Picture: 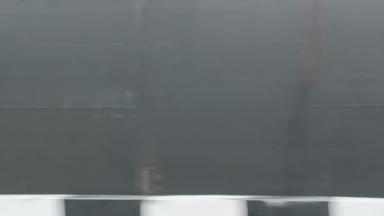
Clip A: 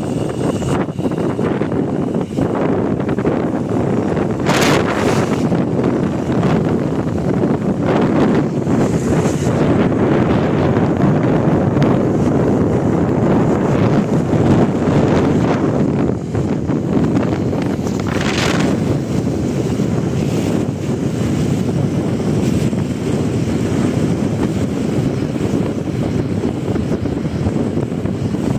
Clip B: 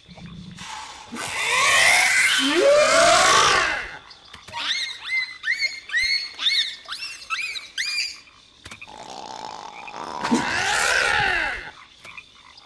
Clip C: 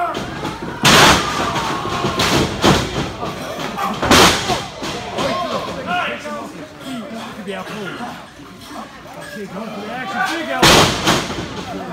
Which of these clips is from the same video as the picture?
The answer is A